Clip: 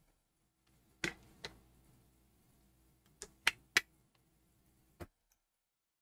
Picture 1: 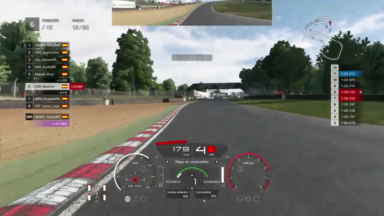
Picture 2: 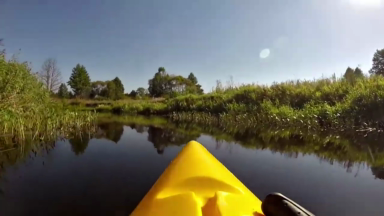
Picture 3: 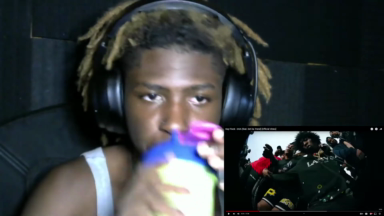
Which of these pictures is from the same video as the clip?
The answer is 3